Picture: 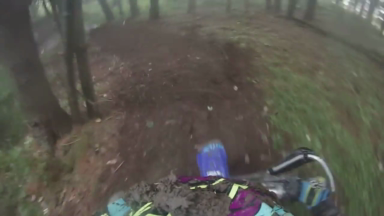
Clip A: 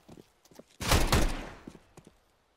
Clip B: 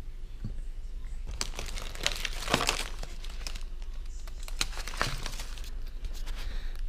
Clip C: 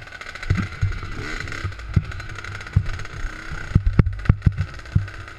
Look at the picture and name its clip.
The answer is C